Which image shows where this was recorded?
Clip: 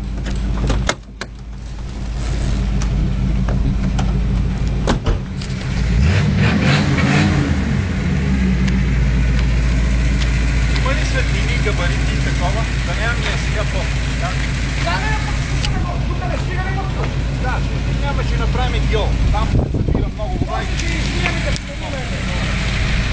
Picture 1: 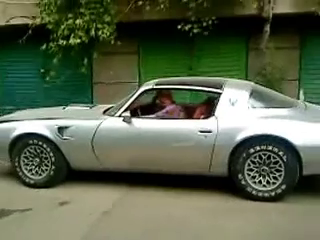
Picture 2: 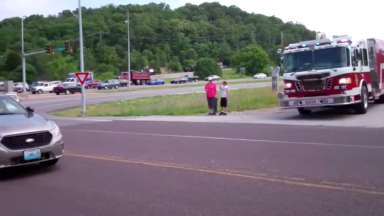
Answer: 1